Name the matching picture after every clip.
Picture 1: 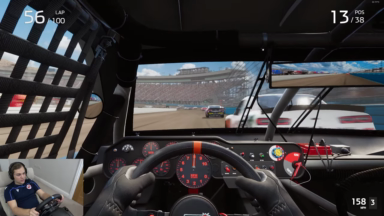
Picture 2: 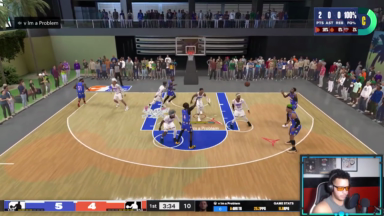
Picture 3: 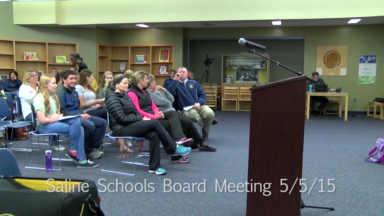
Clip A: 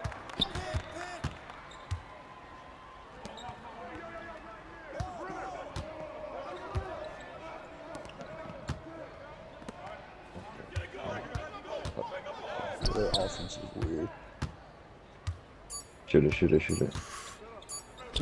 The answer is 2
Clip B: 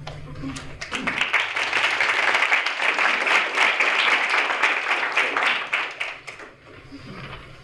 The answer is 3